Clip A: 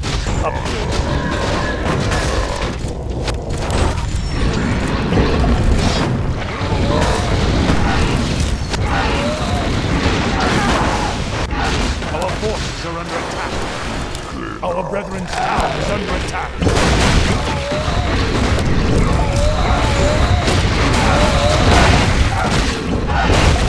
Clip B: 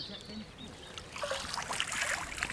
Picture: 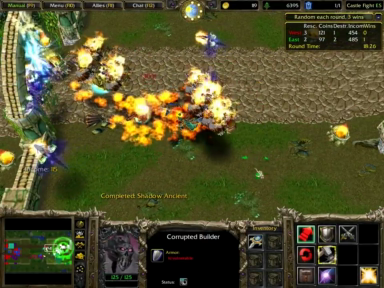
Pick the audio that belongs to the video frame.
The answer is A